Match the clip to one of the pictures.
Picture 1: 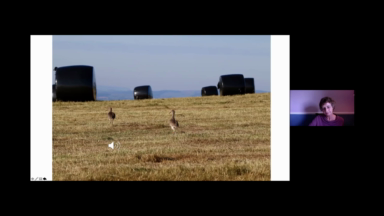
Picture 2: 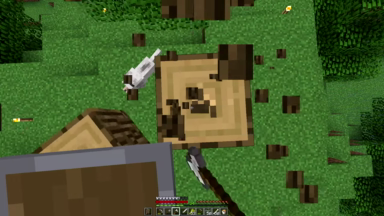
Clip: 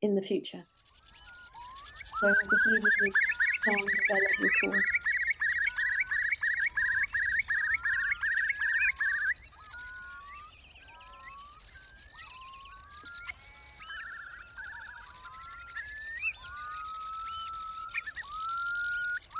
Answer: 1